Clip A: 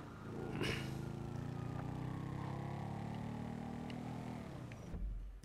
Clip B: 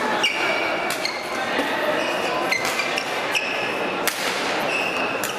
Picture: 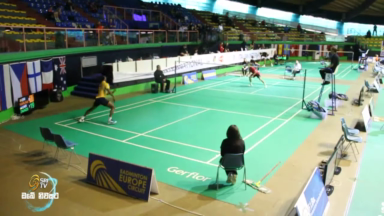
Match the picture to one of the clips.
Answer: B